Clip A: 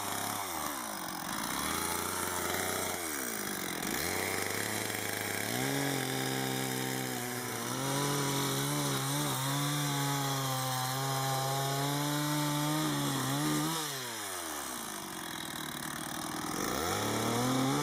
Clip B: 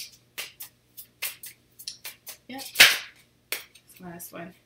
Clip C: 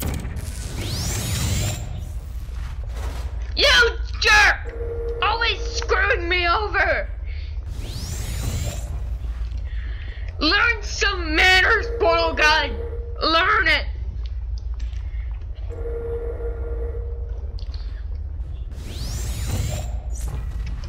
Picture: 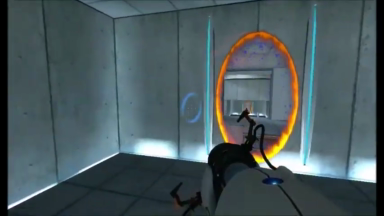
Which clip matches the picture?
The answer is C